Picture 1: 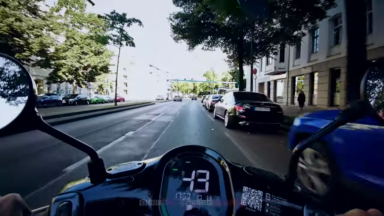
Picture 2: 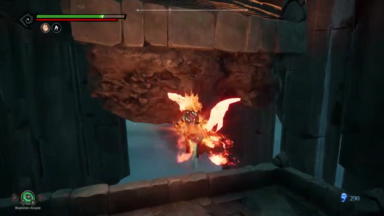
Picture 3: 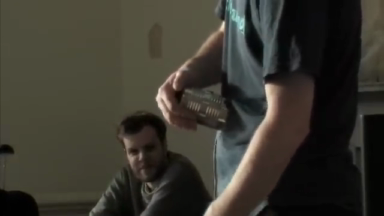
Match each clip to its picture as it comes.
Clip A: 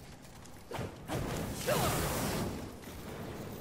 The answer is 2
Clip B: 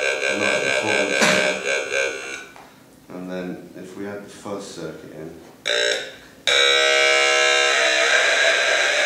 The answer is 3